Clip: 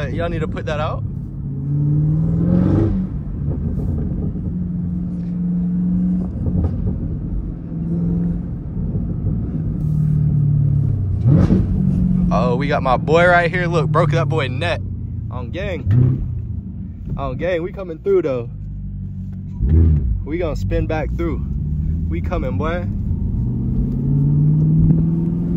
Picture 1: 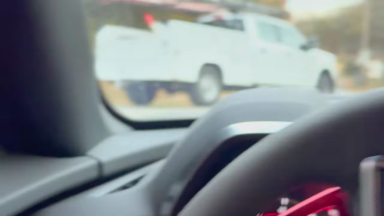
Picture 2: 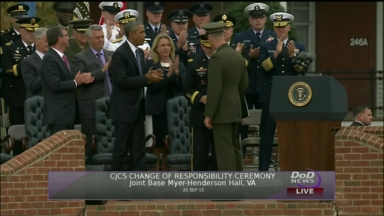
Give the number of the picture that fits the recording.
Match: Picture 1